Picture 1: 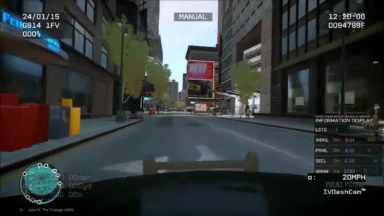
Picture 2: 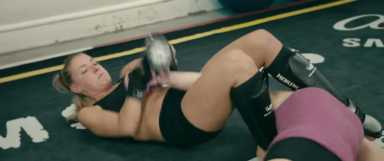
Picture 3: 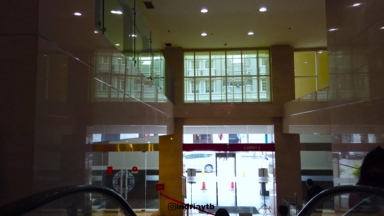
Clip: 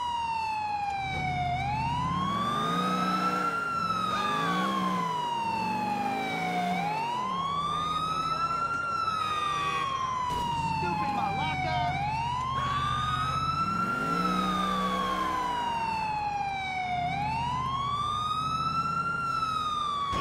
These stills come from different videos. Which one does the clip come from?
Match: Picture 1